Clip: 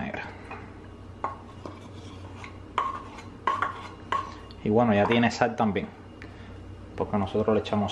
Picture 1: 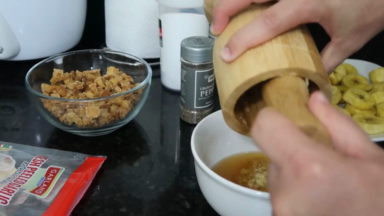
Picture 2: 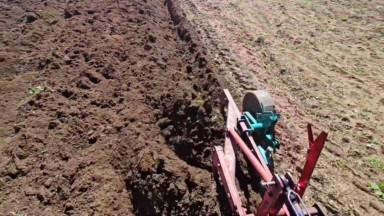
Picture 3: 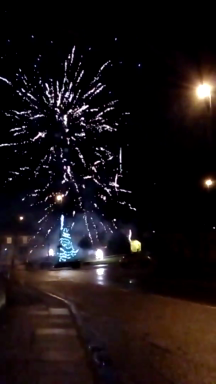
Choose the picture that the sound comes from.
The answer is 1